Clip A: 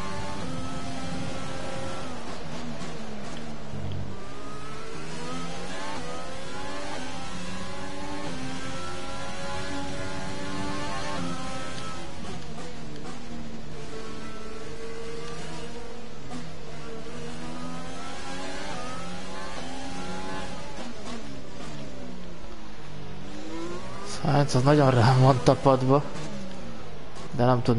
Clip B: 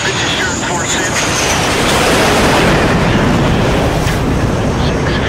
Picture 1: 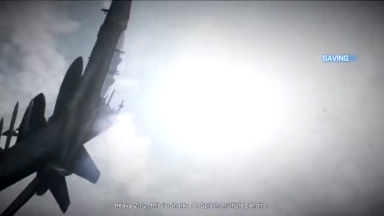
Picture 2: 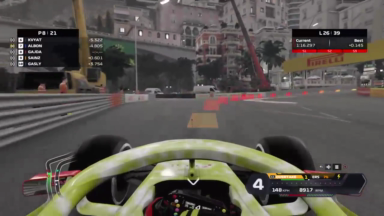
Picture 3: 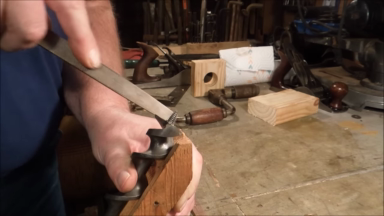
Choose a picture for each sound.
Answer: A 2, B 1